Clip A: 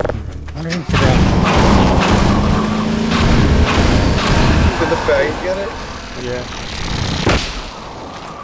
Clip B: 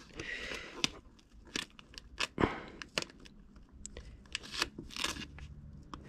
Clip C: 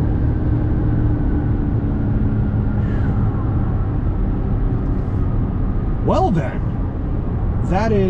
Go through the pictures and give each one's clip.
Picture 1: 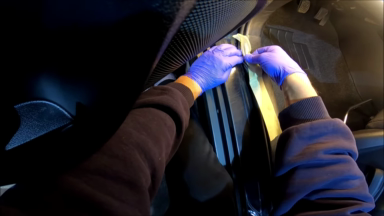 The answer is B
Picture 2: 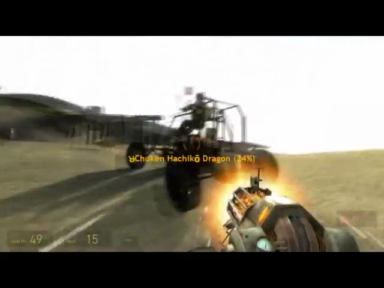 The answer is A